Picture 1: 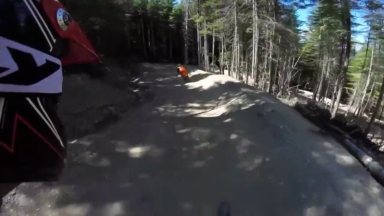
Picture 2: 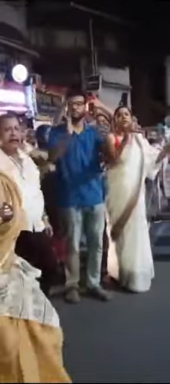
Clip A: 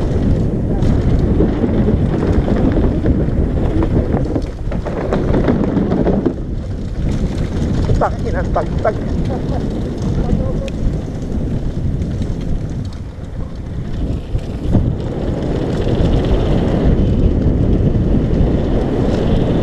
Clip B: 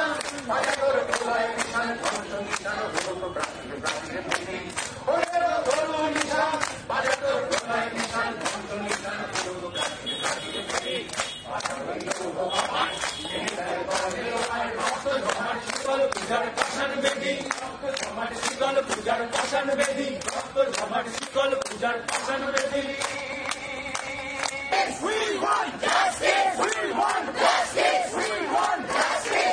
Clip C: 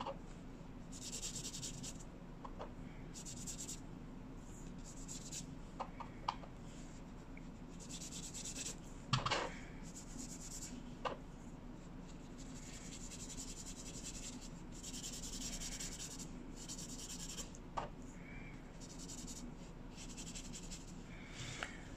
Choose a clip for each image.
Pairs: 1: A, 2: B